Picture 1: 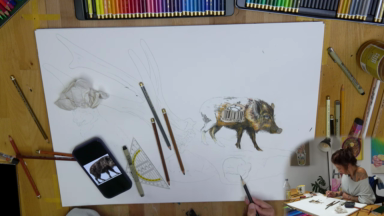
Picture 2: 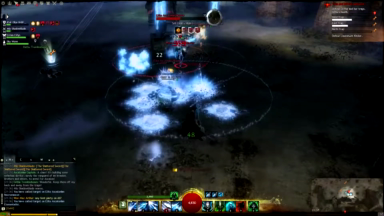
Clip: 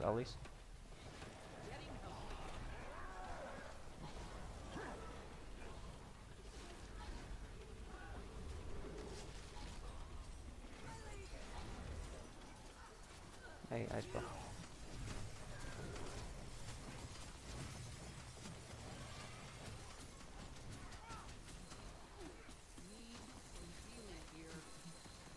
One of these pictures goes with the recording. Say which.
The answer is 2